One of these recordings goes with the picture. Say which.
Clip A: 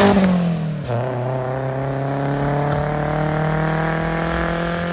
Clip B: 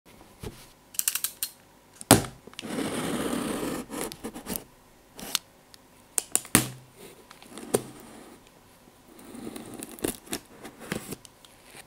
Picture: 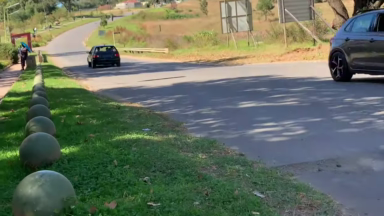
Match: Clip A